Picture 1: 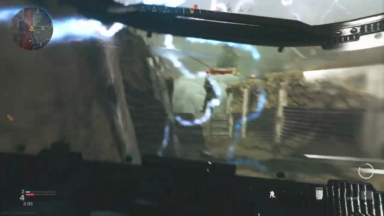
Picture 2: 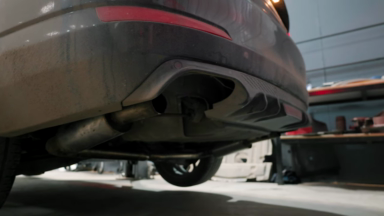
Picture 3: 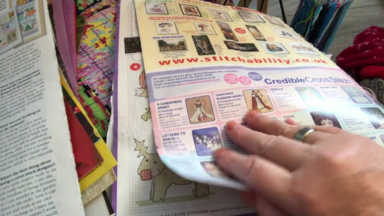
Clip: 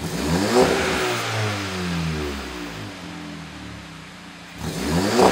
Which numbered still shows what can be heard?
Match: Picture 2